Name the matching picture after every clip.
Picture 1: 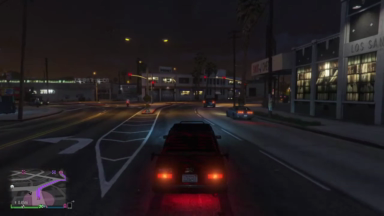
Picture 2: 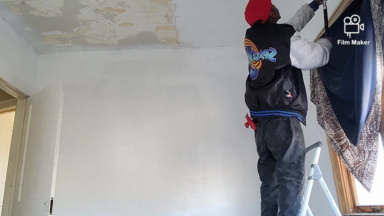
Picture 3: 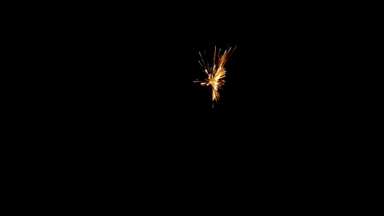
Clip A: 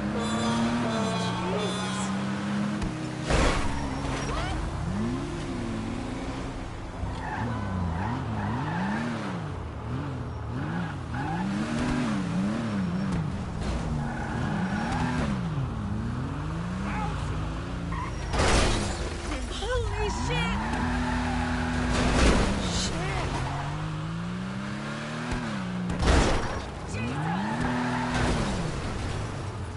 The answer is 1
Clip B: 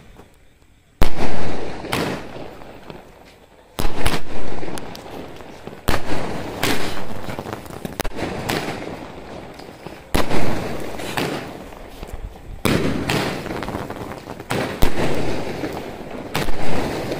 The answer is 3